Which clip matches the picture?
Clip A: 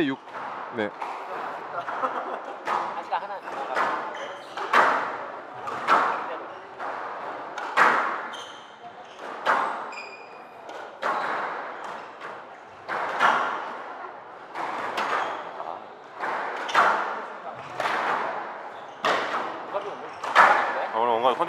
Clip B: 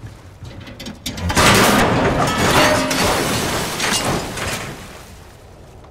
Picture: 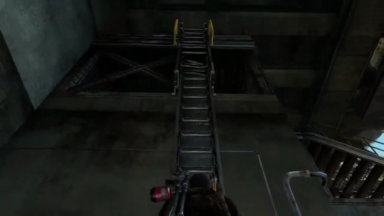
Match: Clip B